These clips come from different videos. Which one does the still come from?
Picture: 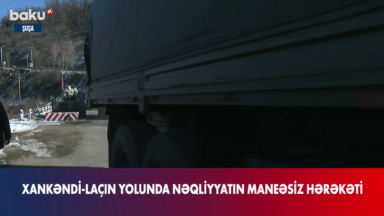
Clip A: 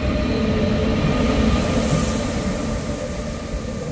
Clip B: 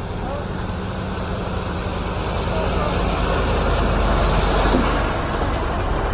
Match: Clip B